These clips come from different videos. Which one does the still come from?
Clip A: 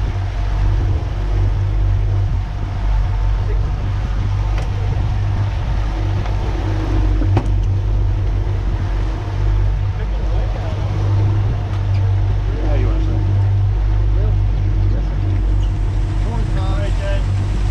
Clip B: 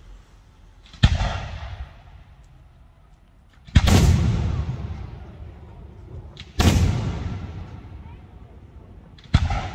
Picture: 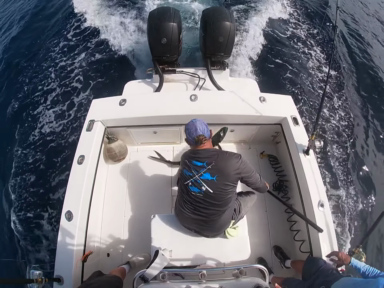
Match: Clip A